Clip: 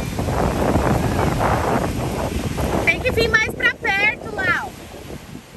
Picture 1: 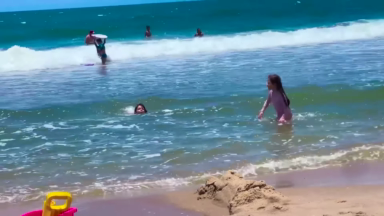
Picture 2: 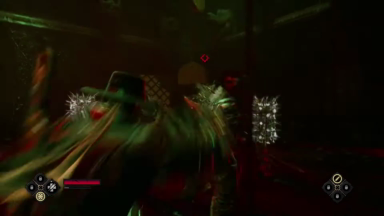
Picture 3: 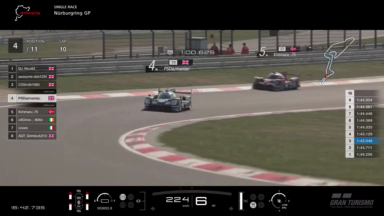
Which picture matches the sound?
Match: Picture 1